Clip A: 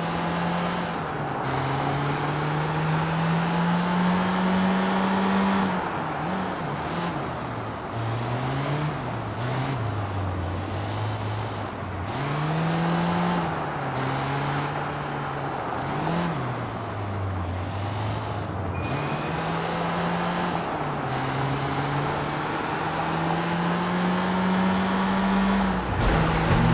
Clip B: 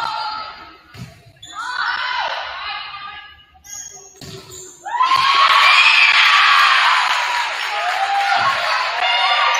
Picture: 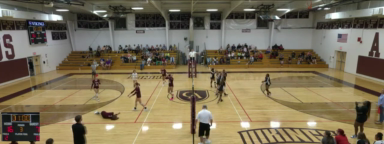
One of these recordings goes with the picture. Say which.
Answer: B